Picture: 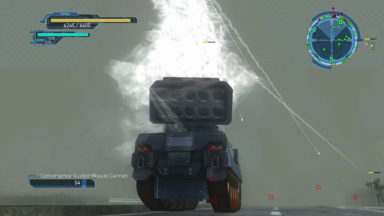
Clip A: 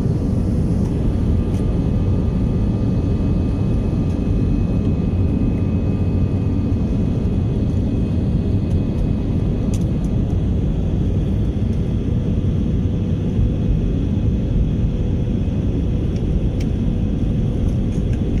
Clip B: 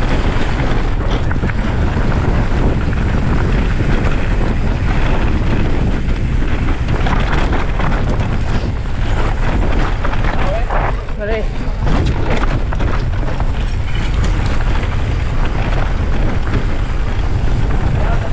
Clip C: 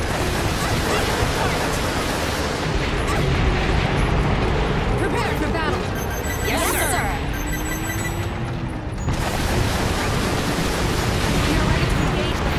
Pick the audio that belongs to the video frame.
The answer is C